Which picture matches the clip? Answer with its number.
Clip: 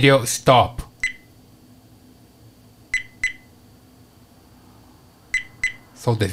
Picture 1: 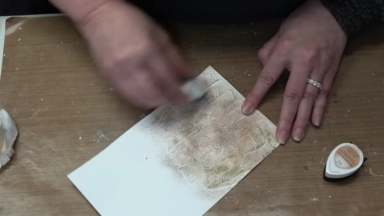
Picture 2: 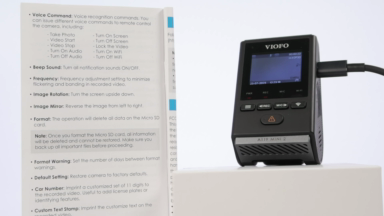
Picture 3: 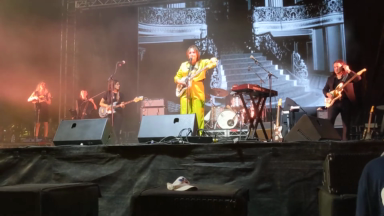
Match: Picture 2